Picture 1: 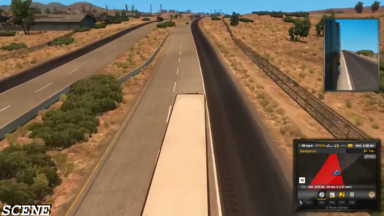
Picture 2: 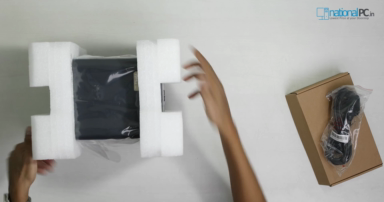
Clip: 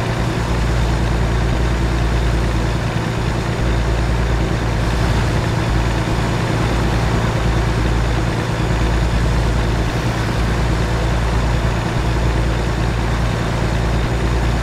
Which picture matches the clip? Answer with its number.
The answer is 1